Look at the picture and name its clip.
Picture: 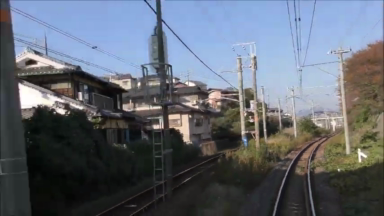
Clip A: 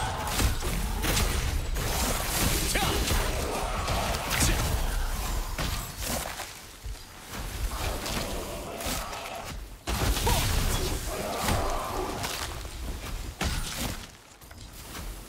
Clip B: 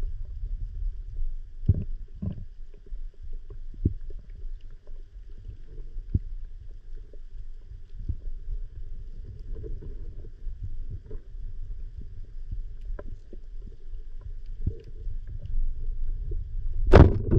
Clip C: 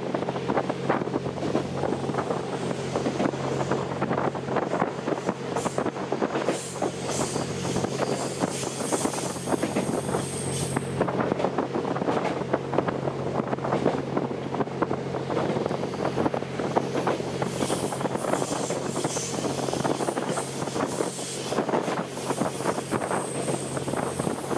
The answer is C